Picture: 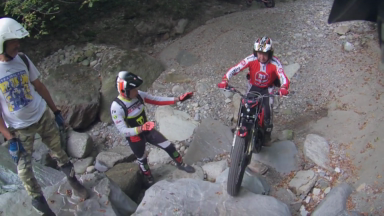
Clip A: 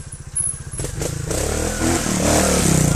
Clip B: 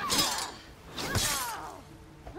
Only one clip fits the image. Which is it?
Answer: A